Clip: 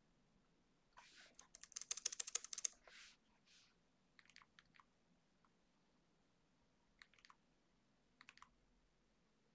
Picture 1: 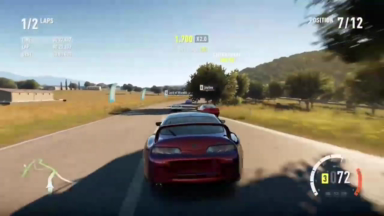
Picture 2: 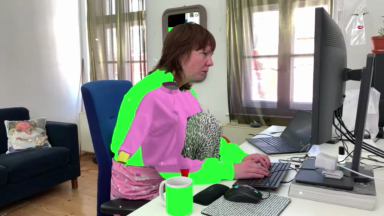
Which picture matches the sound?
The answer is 2